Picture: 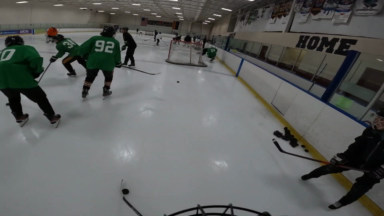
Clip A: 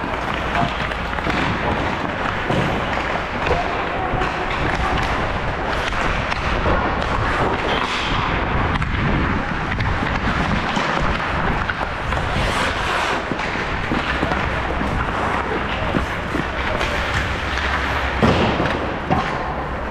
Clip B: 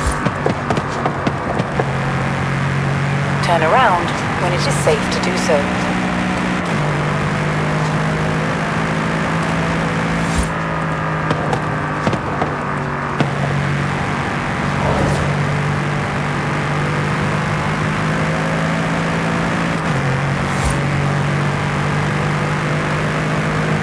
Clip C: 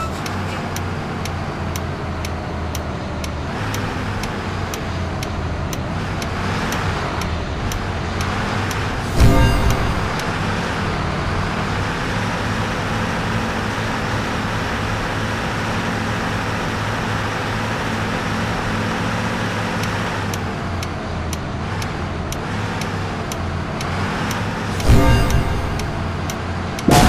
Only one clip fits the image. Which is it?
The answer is A